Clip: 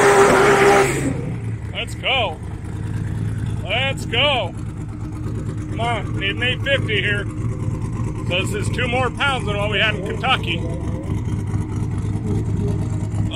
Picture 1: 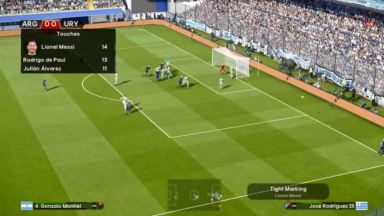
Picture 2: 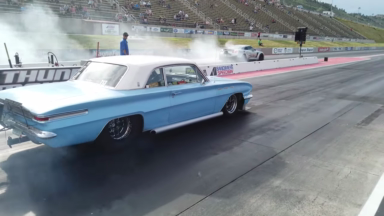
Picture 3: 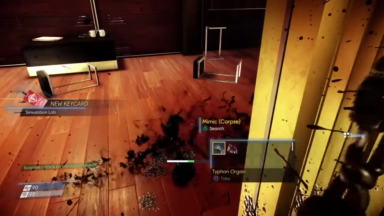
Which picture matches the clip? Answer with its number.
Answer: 2